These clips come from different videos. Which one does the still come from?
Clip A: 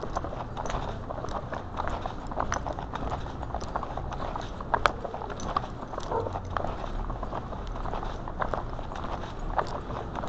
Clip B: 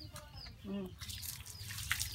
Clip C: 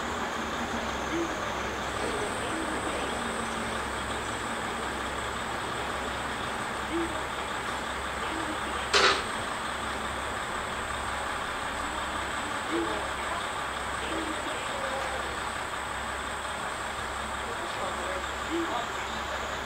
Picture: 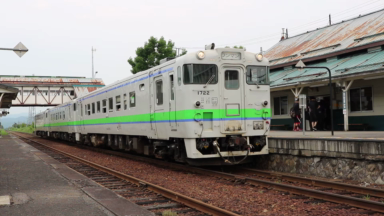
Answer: C